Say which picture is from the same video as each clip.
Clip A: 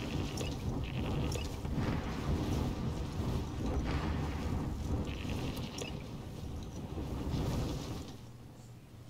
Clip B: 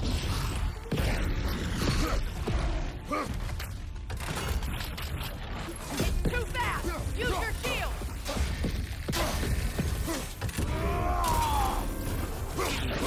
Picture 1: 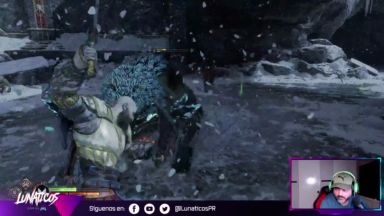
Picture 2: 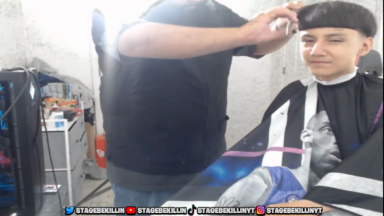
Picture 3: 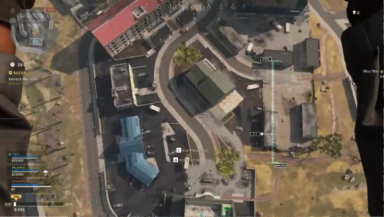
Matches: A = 3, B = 1